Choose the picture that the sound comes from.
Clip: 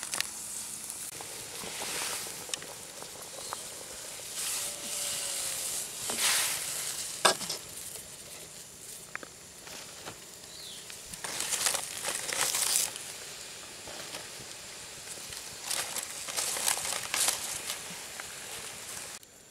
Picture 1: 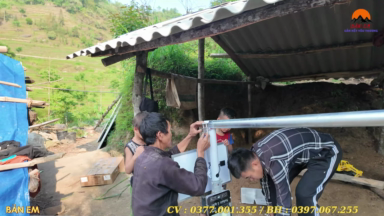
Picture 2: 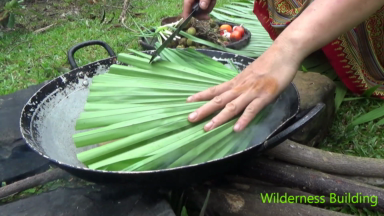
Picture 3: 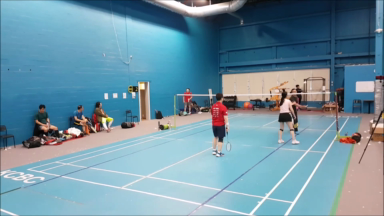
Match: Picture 2